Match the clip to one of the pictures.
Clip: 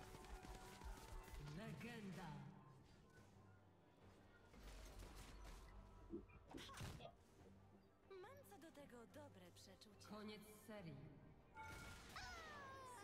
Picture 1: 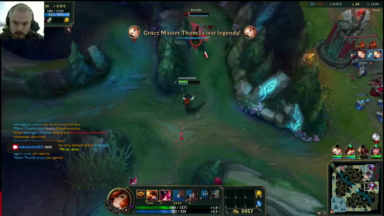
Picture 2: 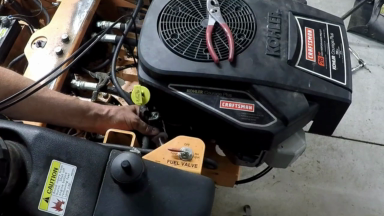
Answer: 1